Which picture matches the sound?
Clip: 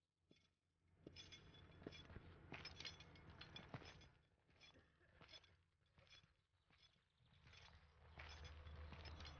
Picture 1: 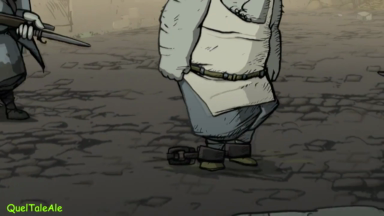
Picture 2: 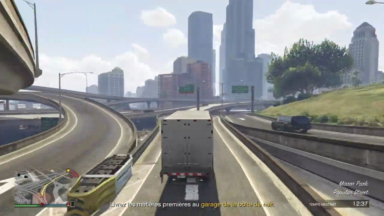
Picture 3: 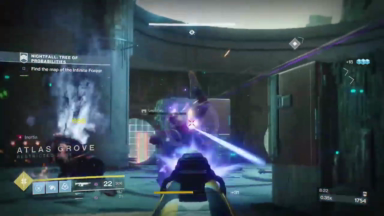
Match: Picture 1